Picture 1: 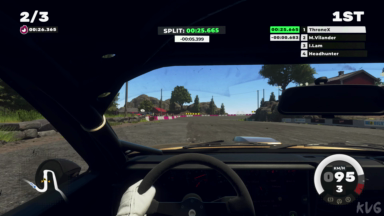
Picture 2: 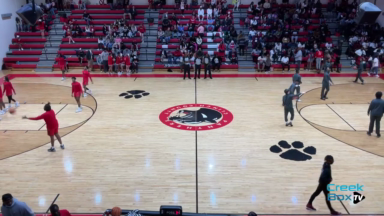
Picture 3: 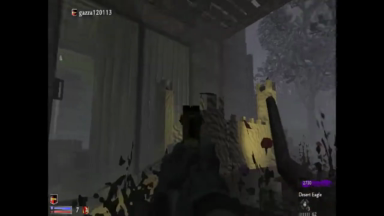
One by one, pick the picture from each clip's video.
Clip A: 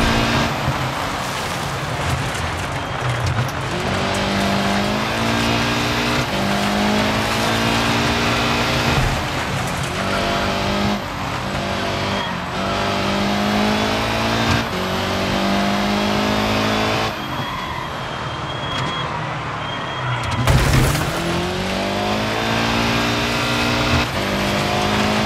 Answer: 1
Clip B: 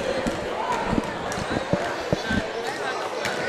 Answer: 2